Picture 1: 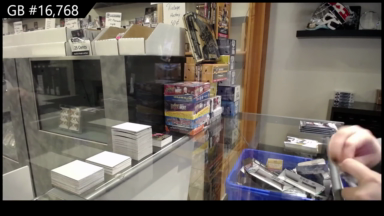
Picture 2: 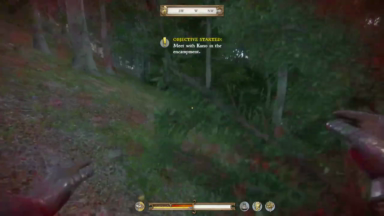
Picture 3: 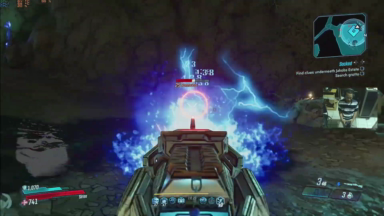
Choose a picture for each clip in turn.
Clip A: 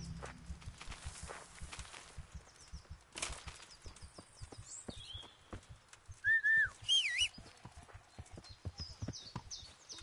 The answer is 2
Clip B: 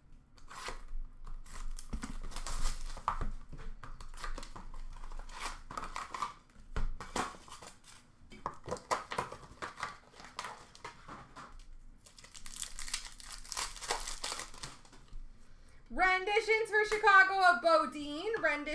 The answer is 1